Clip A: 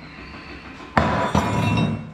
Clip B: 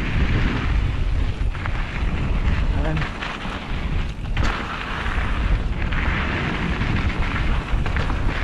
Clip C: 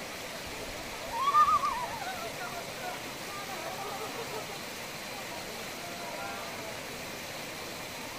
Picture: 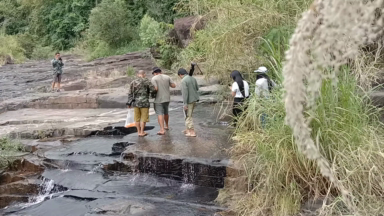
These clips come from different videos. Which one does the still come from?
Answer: C